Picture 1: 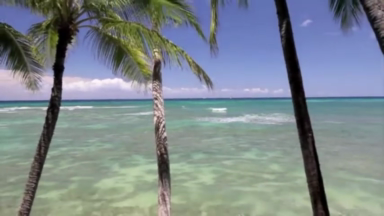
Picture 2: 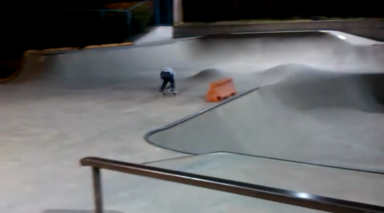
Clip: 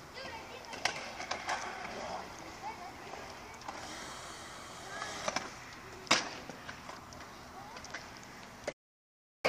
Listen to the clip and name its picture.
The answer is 2